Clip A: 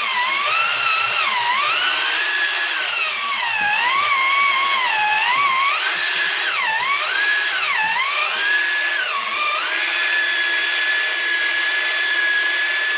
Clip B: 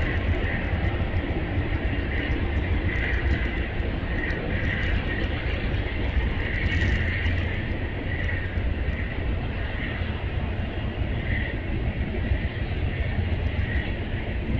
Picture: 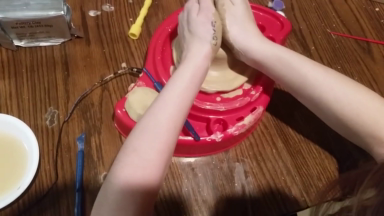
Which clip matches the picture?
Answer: A